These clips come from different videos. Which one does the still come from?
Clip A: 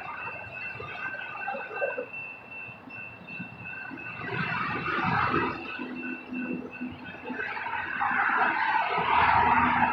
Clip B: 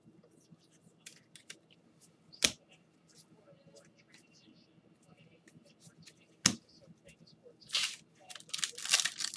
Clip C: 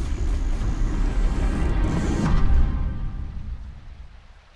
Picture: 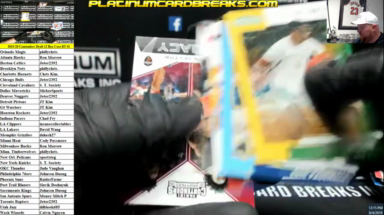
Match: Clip B